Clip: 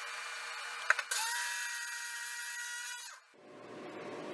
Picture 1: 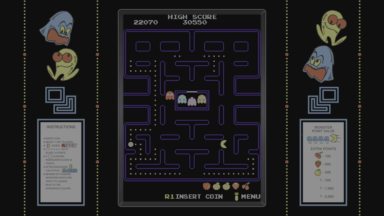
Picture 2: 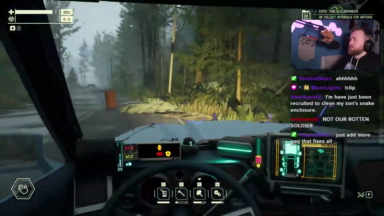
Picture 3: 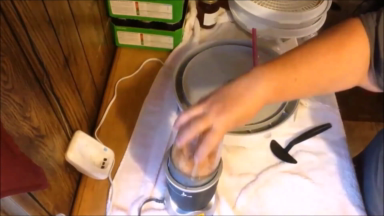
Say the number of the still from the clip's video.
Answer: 3